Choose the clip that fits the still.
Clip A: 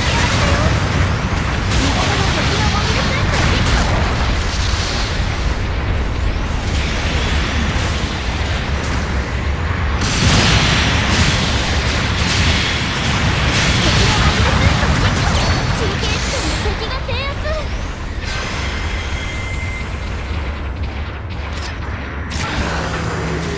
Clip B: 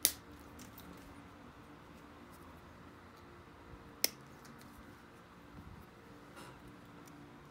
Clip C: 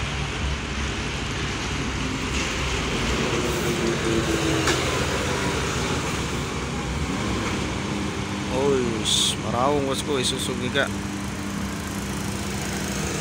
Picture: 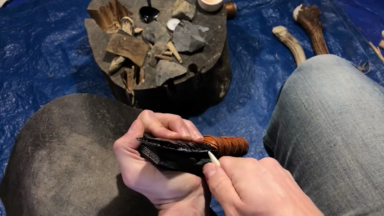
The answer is B